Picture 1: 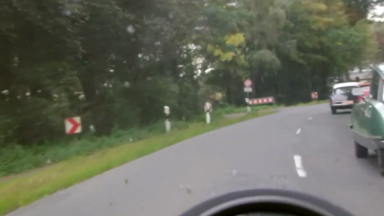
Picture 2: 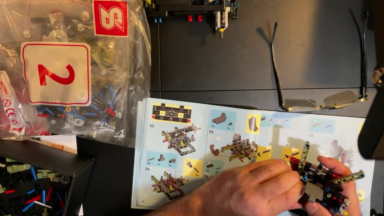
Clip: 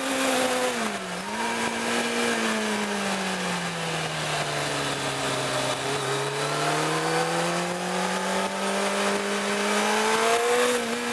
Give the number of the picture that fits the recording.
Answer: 1